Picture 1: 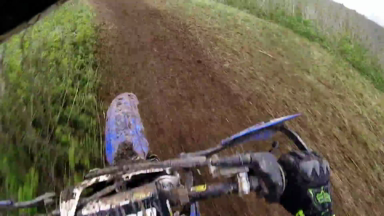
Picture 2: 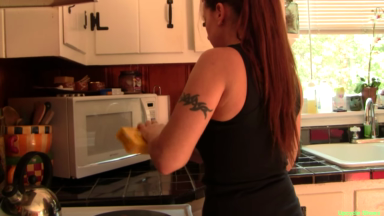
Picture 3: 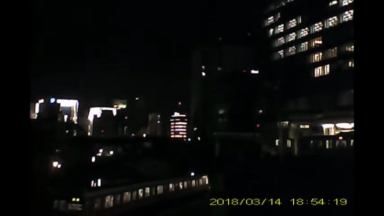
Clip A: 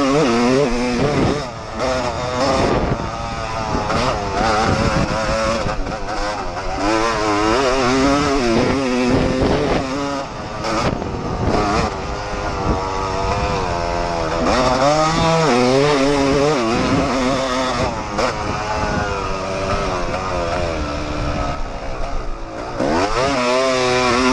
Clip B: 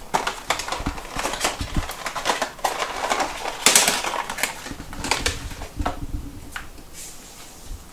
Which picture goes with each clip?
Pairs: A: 1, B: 2